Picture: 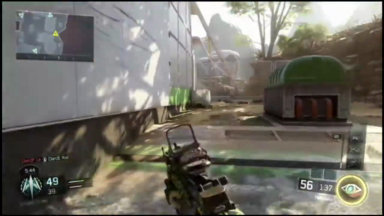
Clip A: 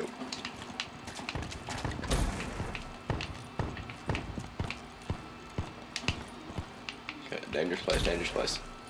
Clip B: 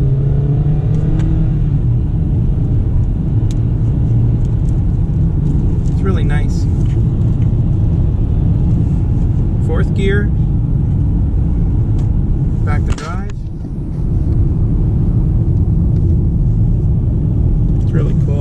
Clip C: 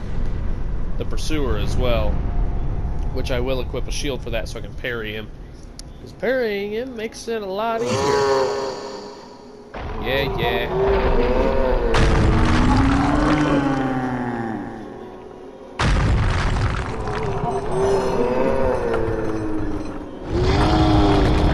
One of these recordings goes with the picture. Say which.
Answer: A